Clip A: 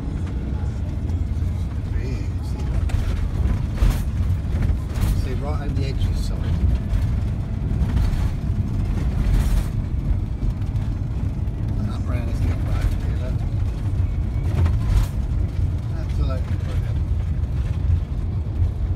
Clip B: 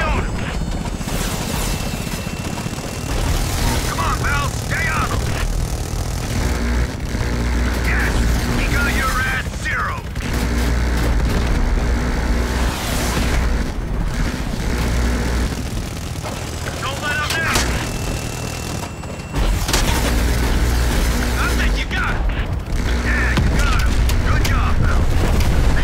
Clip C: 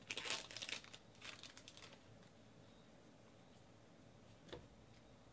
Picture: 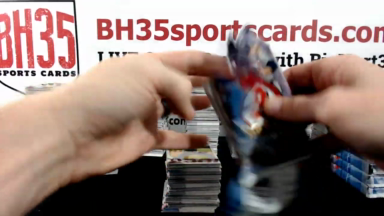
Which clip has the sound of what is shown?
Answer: C